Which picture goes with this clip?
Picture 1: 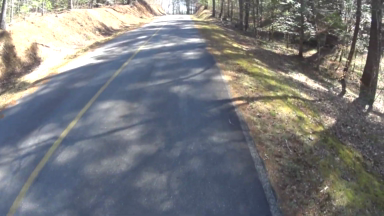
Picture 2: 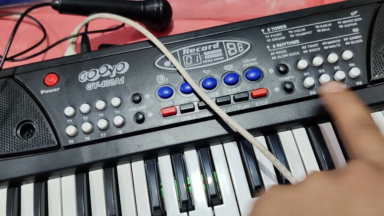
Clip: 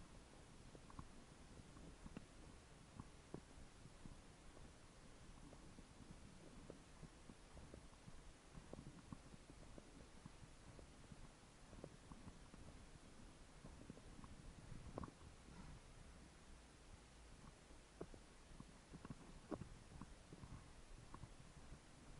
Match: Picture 1